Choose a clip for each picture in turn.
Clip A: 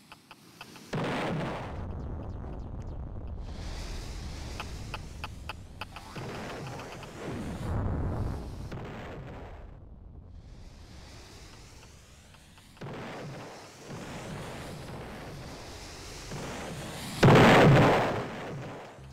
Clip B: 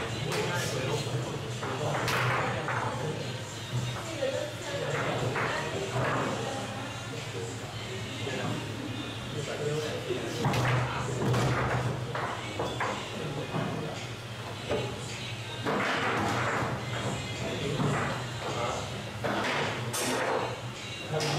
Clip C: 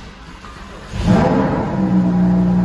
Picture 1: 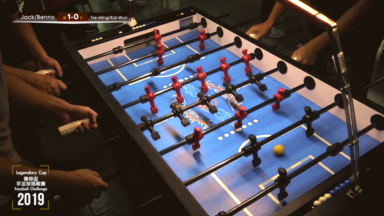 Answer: B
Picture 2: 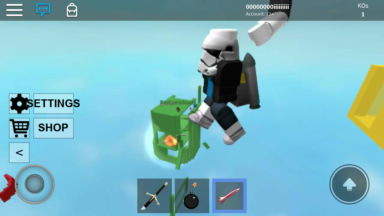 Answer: A